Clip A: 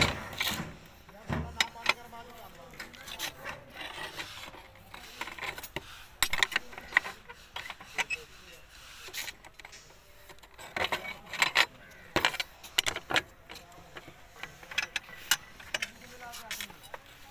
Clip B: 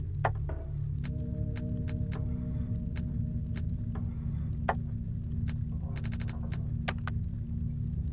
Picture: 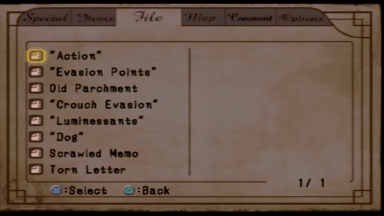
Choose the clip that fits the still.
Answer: B